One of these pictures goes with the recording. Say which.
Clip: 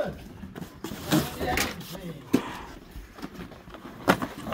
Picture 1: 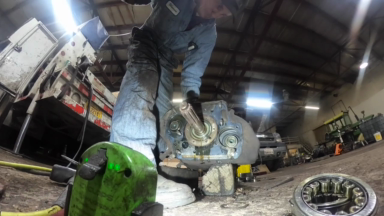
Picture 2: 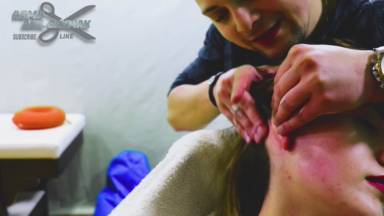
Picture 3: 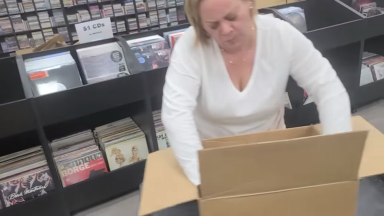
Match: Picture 3